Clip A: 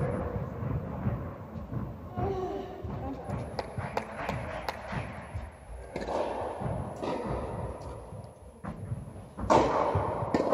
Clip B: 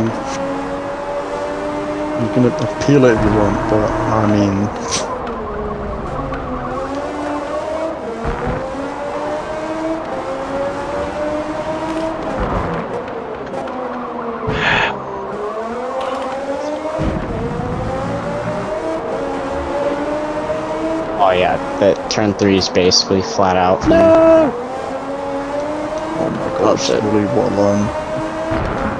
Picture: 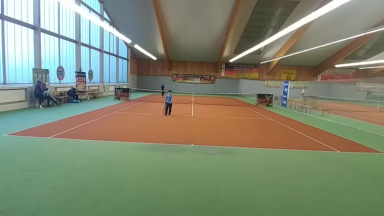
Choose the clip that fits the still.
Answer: A